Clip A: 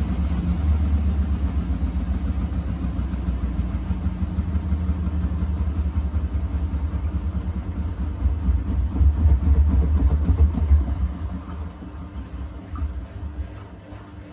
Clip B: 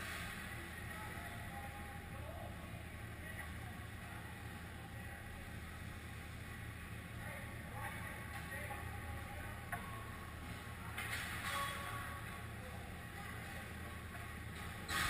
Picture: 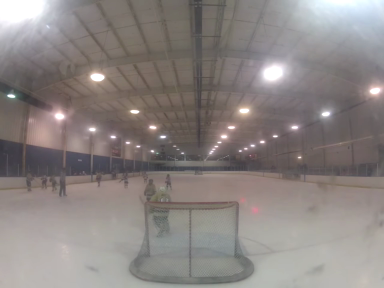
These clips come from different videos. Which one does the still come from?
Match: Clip B